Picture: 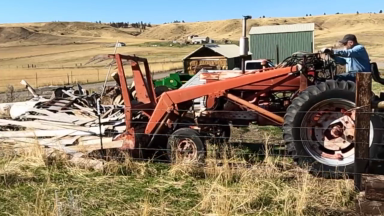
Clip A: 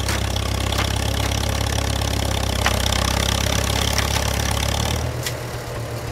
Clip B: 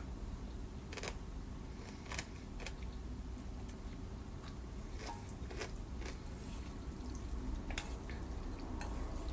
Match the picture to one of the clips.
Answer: A